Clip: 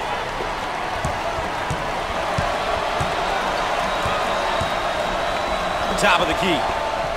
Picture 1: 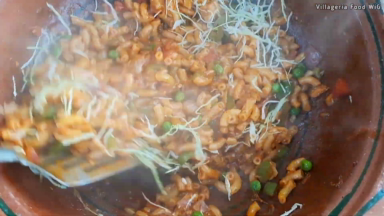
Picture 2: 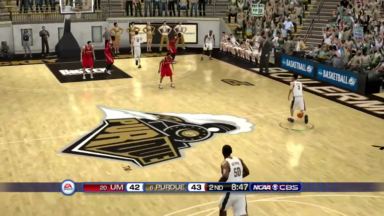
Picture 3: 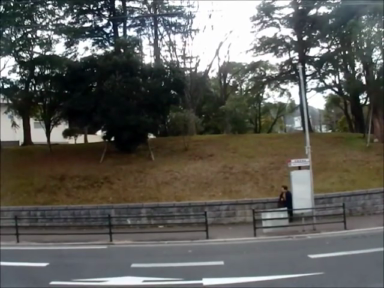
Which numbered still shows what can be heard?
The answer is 2